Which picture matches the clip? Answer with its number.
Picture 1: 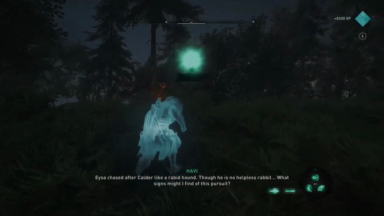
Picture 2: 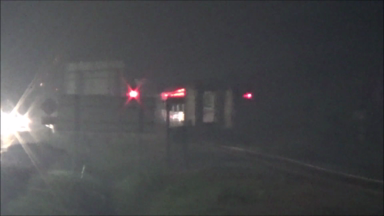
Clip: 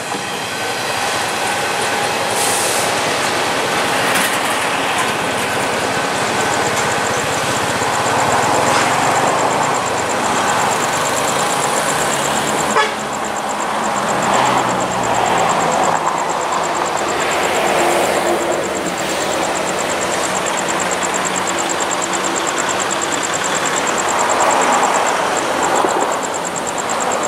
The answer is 2